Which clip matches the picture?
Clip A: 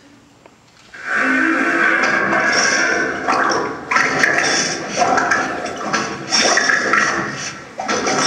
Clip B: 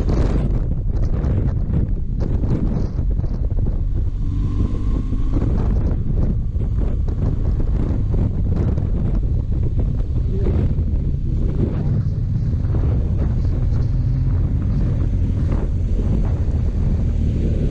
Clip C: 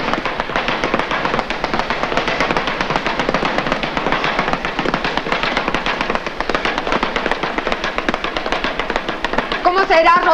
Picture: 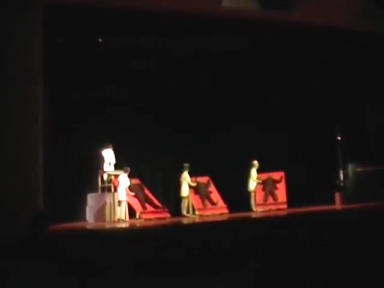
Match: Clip A